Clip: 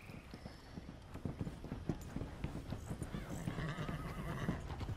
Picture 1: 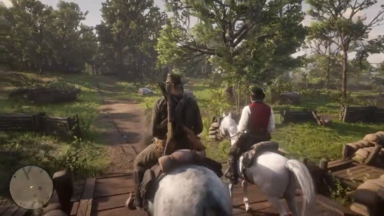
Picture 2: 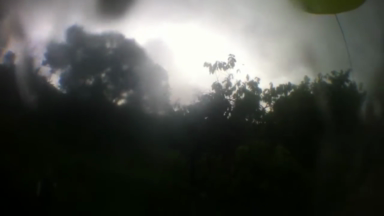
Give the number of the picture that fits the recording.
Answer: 1